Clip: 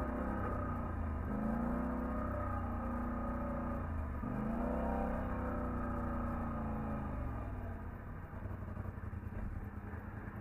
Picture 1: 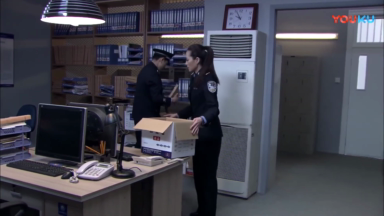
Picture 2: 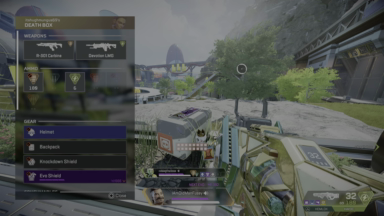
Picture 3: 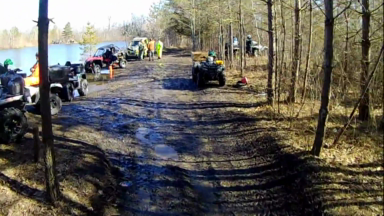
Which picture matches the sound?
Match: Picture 3